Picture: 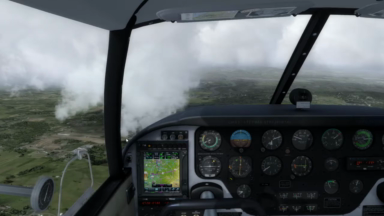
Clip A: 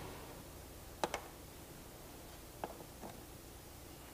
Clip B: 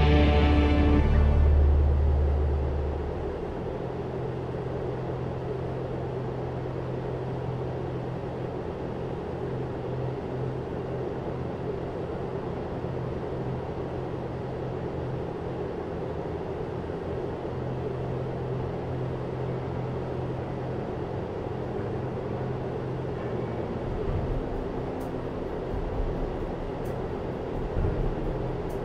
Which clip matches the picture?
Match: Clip B